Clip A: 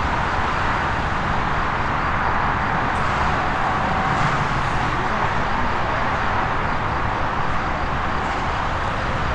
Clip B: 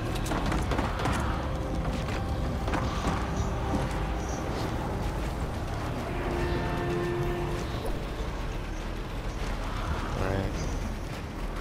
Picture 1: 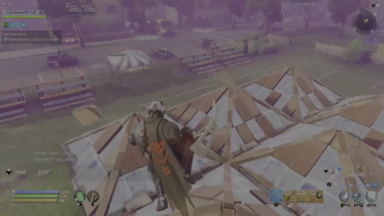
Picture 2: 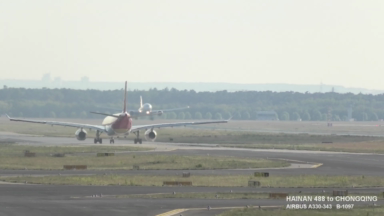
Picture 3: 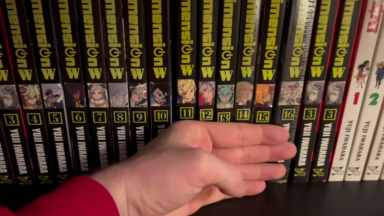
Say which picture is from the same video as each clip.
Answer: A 2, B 1